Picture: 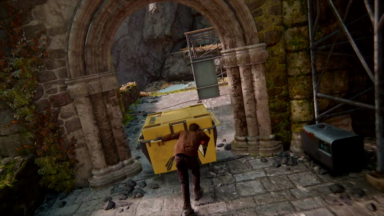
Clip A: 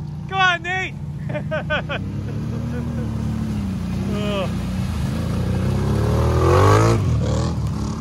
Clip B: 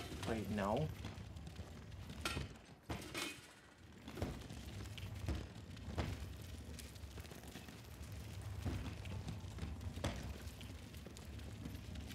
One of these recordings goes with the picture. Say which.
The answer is B